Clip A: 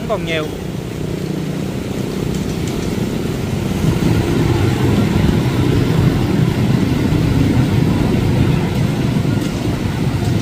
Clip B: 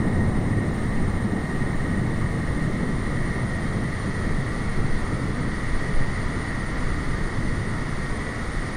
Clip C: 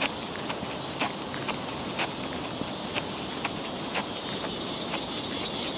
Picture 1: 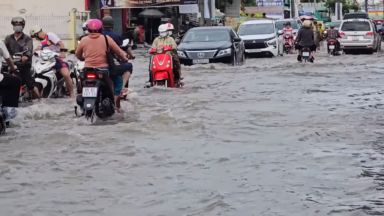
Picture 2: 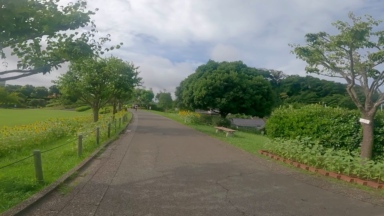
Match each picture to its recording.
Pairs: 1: A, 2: C